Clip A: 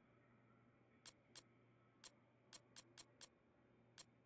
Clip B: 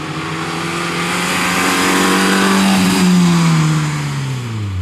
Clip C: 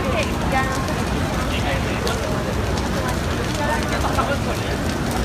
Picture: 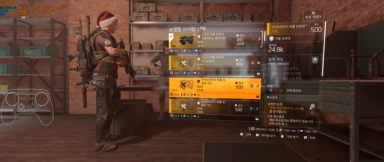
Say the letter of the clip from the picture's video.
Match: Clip A